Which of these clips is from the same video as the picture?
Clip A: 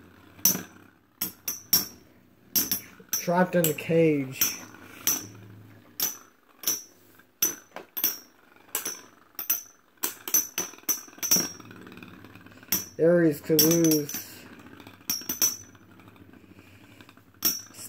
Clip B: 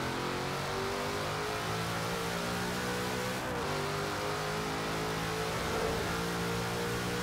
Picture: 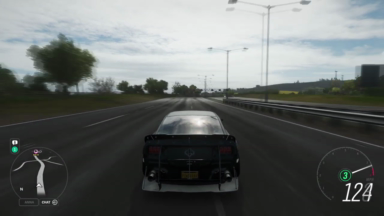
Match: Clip B